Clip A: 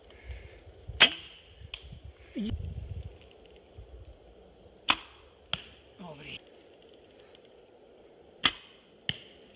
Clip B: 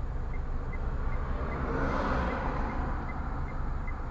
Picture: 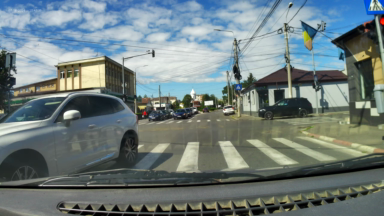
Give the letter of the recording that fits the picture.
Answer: B